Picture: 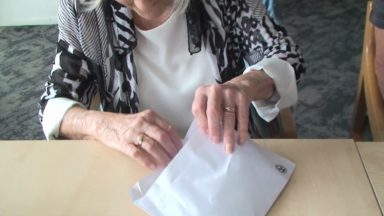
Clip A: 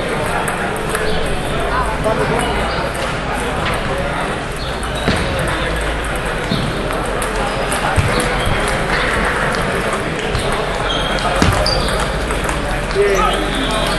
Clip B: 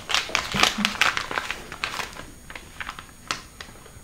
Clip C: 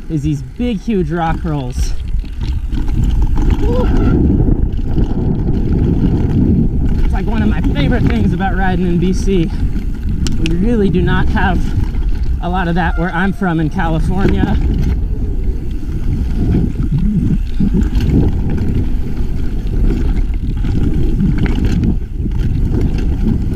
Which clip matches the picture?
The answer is B